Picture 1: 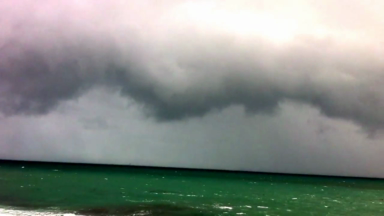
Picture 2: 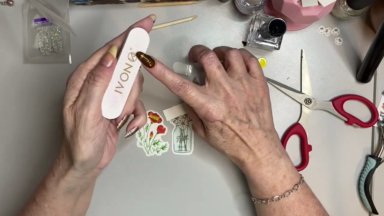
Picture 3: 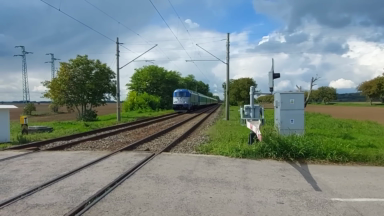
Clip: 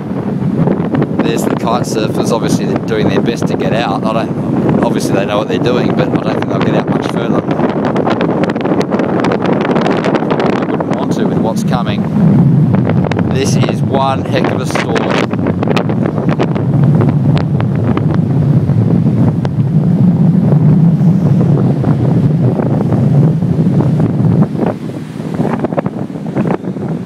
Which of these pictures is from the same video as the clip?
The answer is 1